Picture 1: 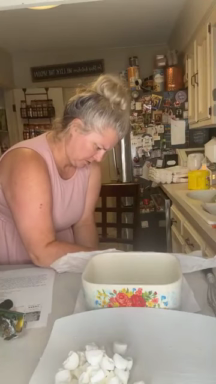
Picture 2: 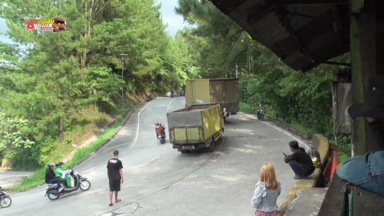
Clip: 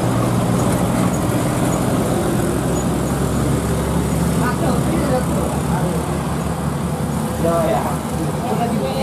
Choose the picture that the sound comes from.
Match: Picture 2